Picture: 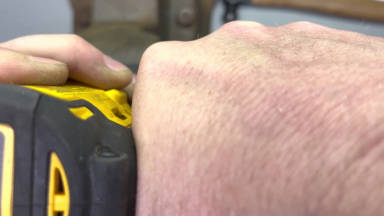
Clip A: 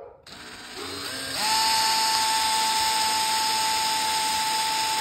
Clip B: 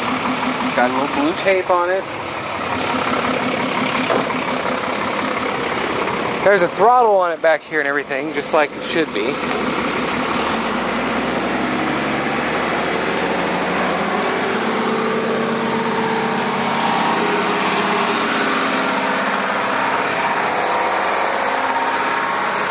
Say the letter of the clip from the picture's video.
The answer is A